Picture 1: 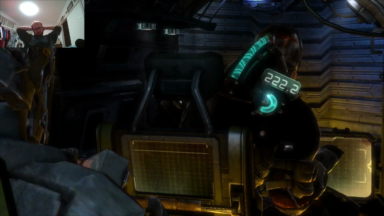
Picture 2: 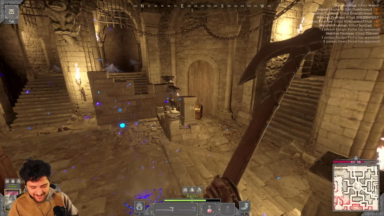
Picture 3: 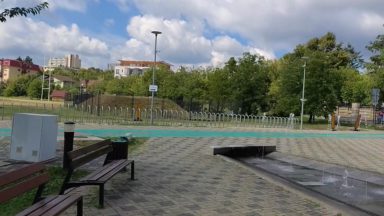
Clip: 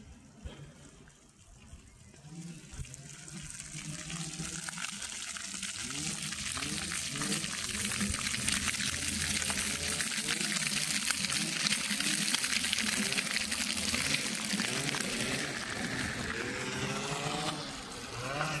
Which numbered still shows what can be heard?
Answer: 3